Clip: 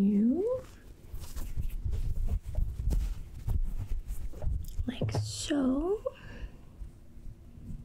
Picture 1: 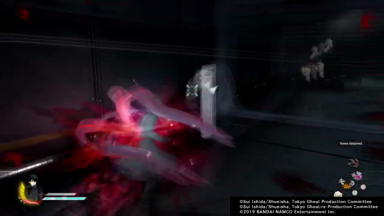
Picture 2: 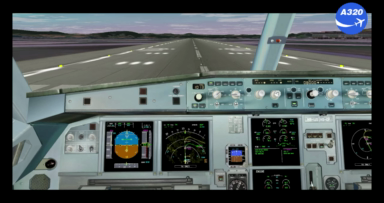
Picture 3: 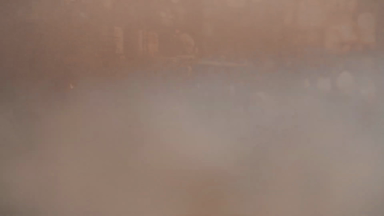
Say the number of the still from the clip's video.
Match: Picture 3